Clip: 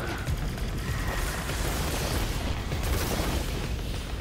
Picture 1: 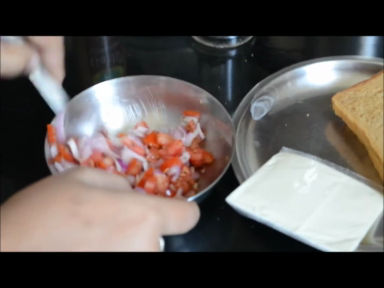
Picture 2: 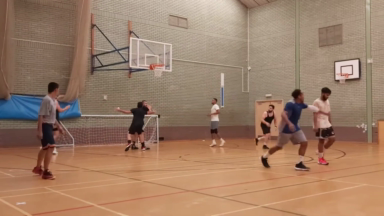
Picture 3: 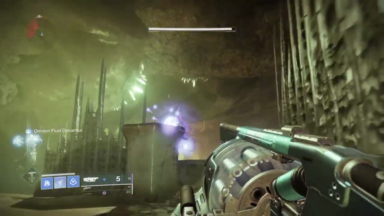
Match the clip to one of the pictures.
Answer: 3